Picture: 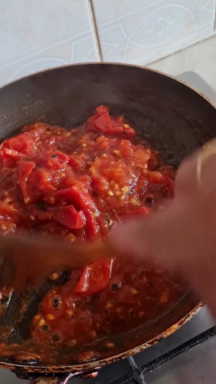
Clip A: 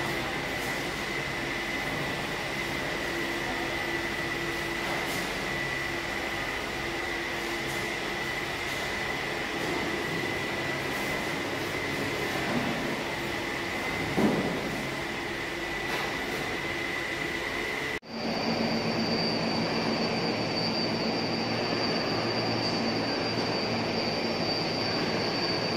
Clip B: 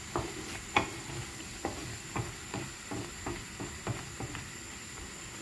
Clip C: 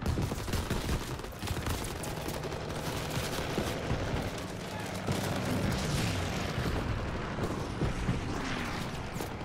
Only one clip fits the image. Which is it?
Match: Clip B